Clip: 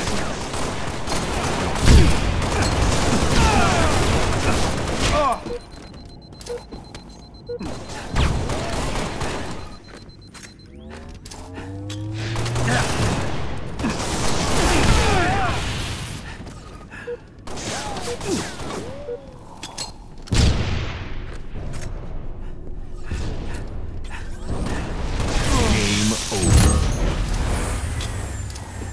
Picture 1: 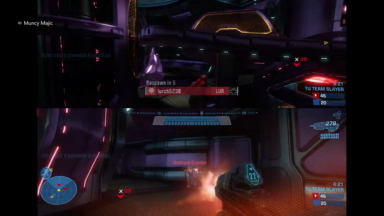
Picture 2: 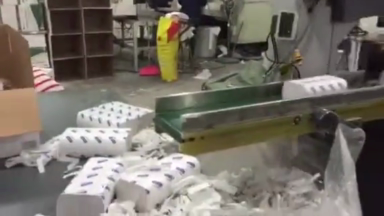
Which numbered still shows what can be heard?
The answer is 1